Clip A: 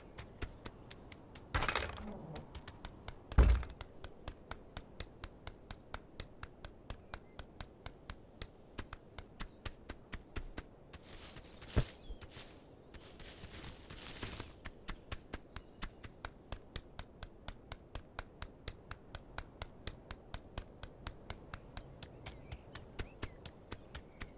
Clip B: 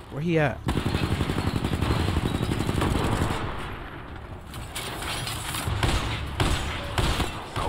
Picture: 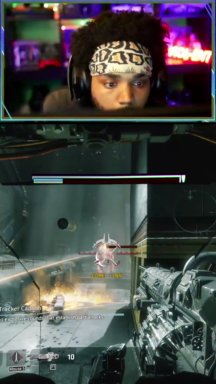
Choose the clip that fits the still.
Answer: B